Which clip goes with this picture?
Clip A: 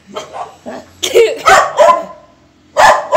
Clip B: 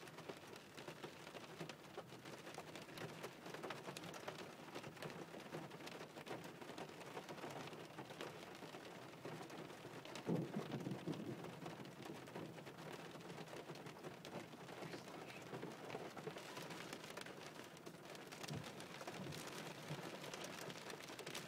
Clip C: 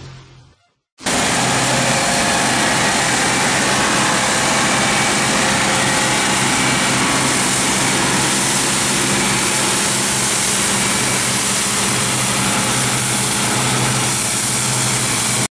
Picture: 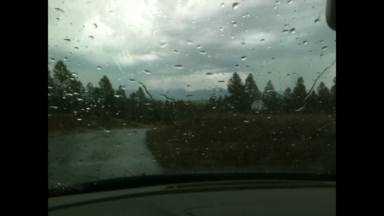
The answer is B